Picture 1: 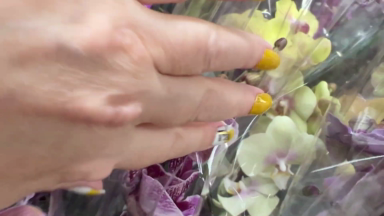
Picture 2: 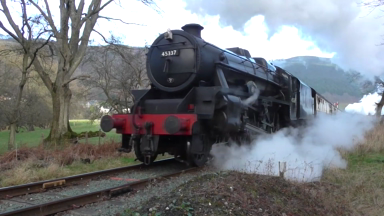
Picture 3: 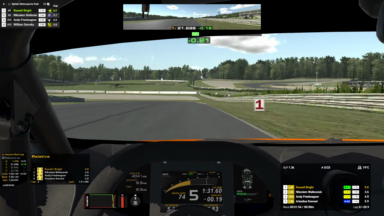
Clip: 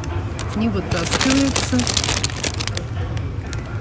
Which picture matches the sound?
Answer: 1